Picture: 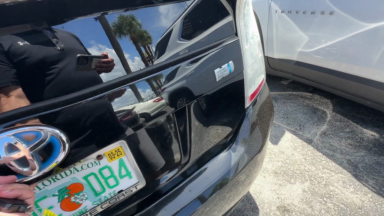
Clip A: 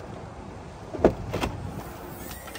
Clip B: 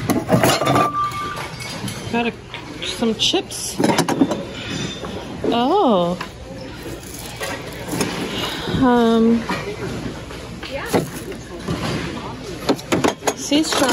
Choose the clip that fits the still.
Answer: A